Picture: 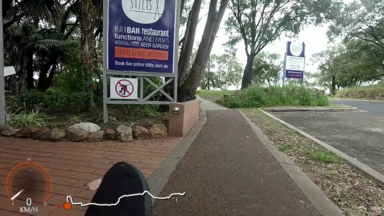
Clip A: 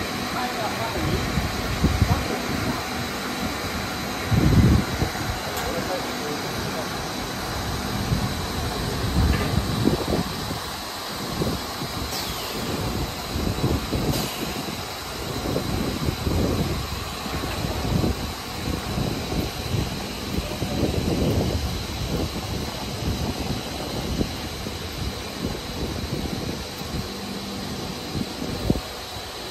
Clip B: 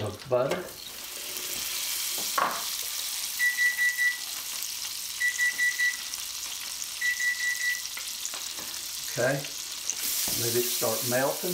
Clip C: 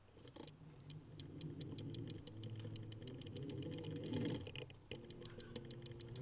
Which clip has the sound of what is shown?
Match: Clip C